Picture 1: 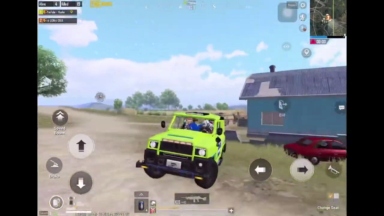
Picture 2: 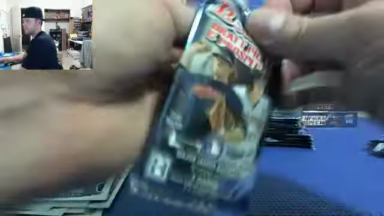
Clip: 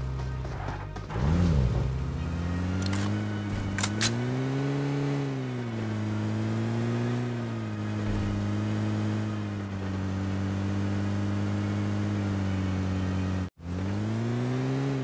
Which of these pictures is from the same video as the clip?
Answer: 1